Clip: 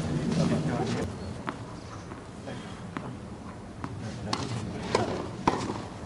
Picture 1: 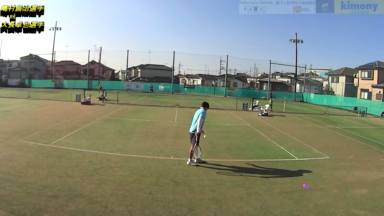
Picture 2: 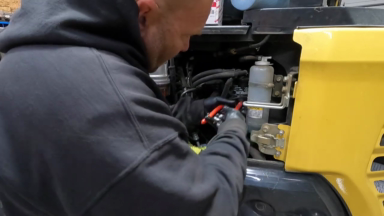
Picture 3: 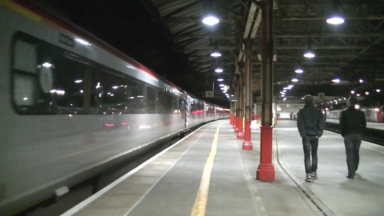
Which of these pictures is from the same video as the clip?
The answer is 1